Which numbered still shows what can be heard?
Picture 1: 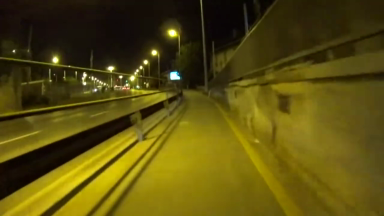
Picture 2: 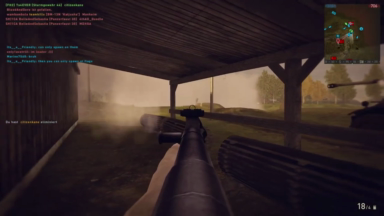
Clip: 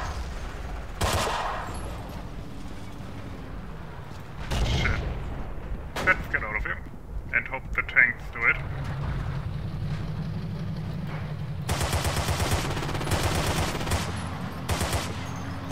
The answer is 2